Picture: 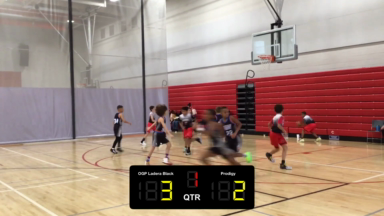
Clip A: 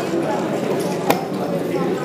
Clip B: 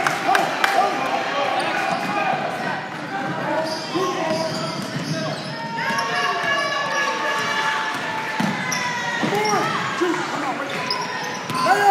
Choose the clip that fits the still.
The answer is B